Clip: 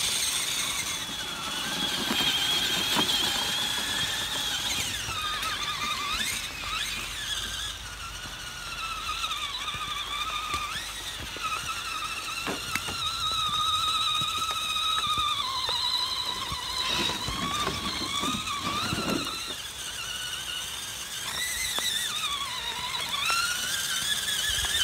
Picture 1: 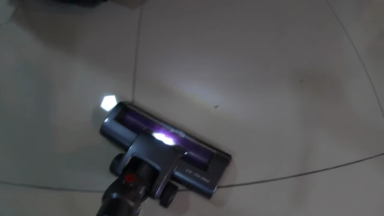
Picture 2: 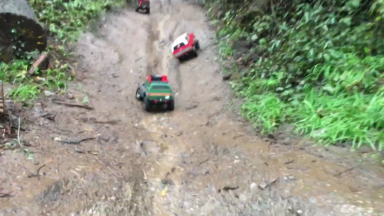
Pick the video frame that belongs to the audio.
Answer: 2